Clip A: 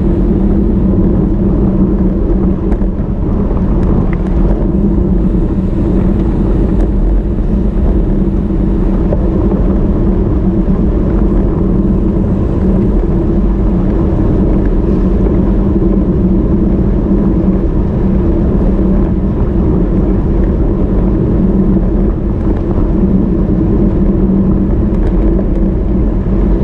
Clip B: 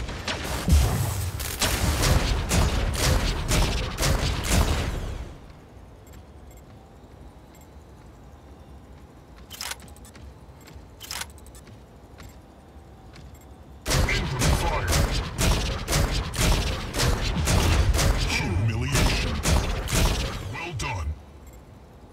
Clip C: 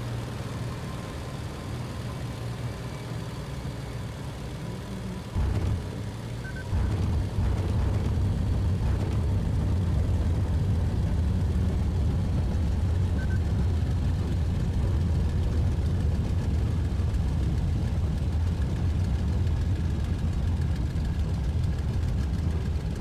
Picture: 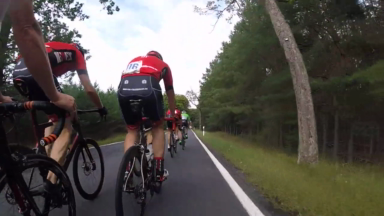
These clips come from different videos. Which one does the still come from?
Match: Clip A